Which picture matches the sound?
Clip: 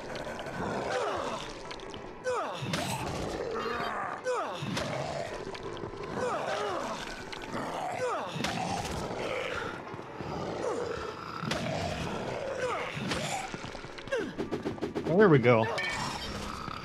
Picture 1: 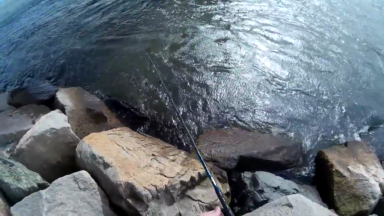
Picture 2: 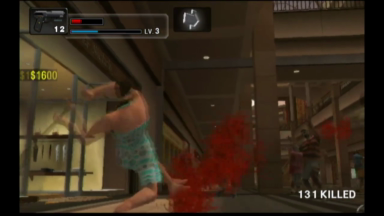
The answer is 2